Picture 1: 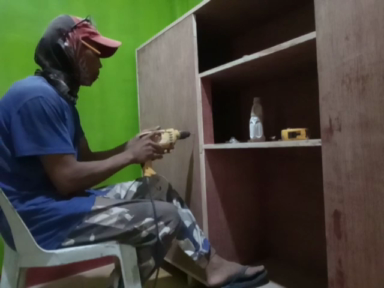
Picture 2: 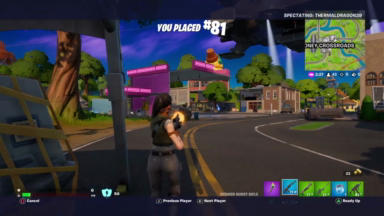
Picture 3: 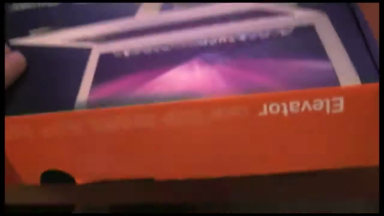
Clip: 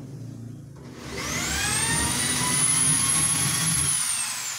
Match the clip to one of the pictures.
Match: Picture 1